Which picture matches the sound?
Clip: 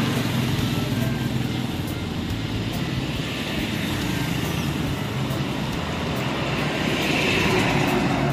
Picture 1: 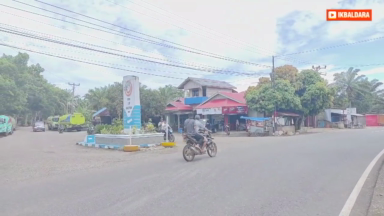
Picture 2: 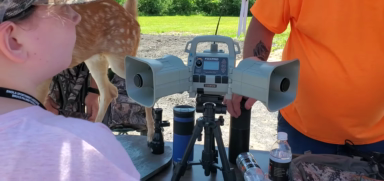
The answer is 1